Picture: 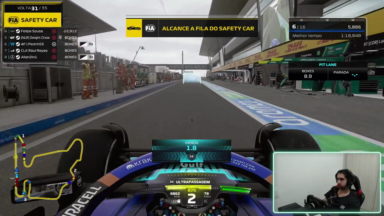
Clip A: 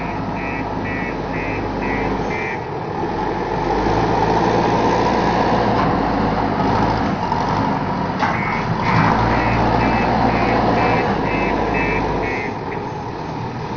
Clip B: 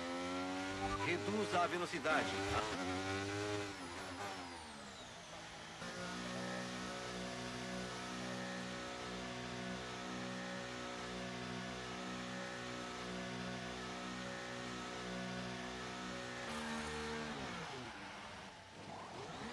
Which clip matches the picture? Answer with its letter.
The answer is B